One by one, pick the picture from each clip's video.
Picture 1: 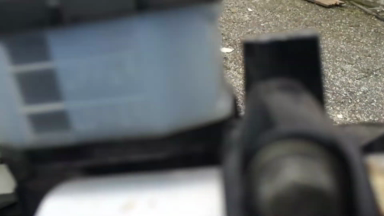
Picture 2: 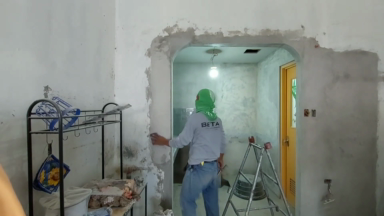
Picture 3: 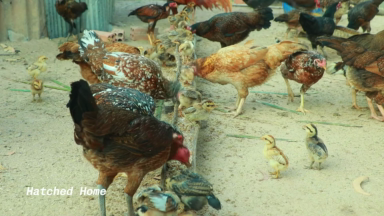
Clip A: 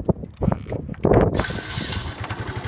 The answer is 1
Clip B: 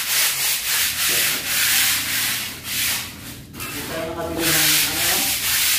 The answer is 2